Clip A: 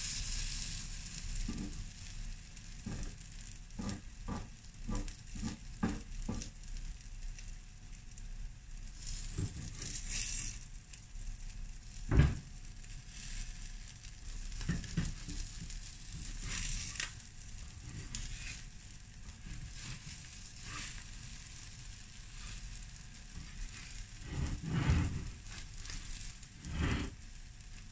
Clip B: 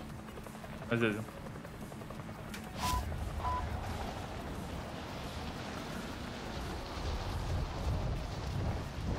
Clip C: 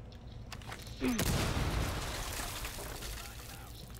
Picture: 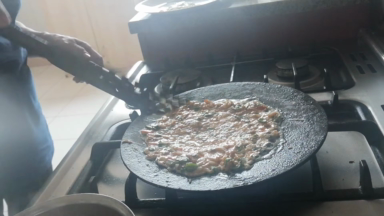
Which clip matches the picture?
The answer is A